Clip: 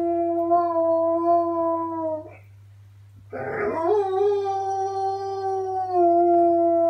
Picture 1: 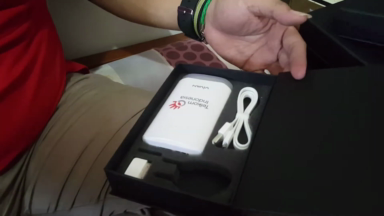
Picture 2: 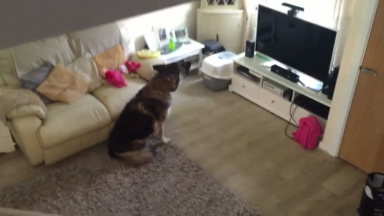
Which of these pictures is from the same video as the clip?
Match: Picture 2